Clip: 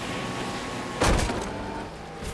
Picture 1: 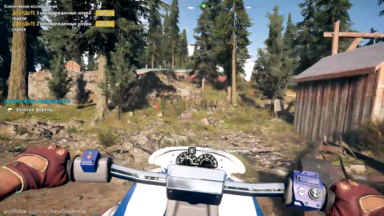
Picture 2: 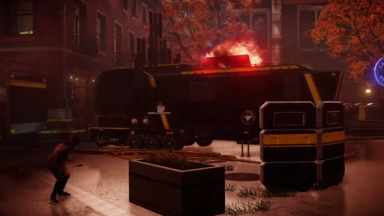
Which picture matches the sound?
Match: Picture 1